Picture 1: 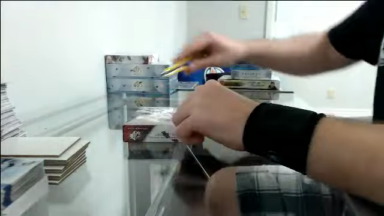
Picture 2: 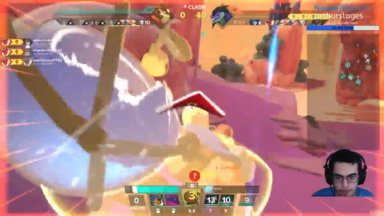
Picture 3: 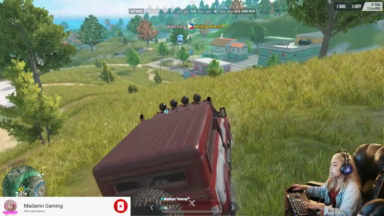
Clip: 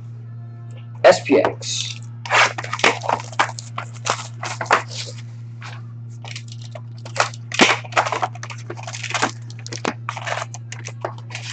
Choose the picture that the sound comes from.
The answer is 1